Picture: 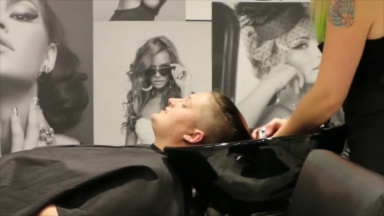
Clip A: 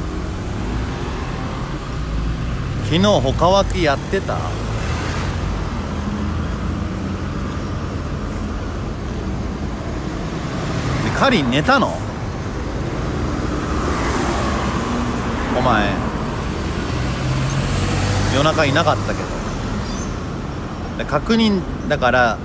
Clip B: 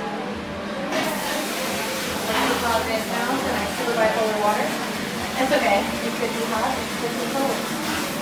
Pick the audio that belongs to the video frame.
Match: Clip B